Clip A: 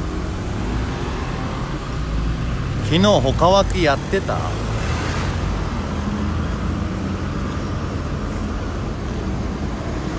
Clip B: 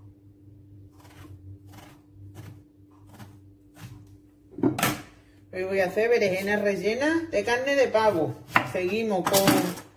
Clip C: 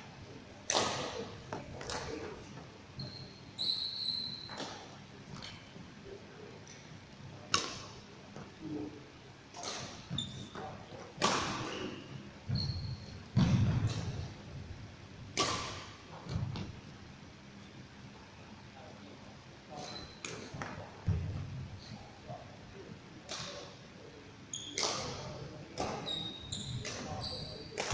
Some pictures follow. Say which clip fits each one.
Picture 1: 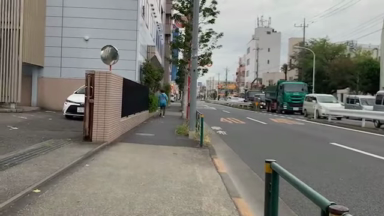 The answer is A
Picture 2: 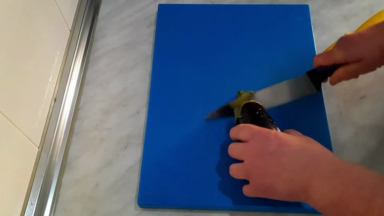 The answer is B